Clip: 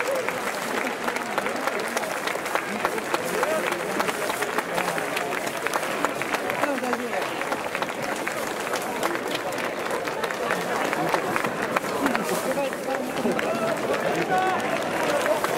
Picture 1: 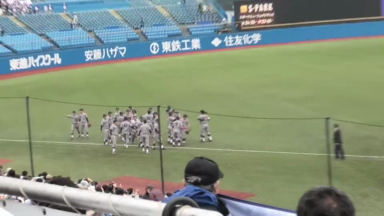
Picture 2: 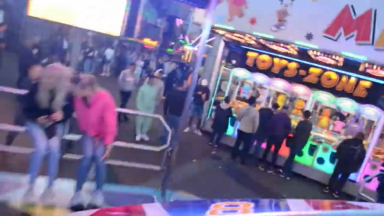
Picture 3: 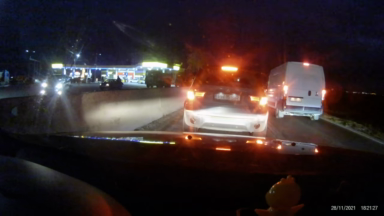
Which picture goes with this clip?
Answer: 1